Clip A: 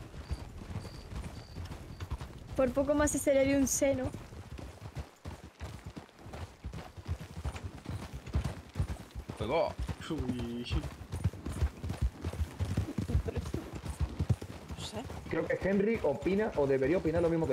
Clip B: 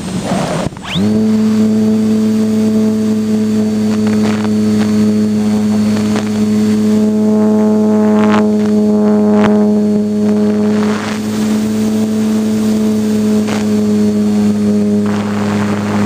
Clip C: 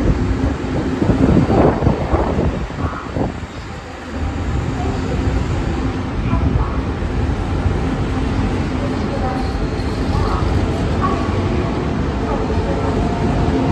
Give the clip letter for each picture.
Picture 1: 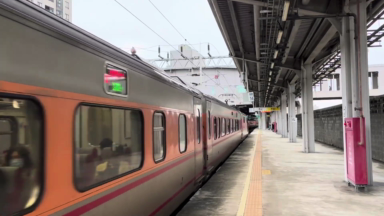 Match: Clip C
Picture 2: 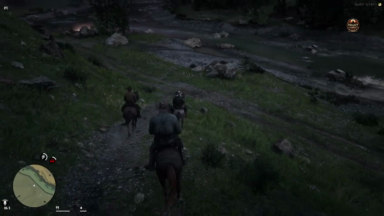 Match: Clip A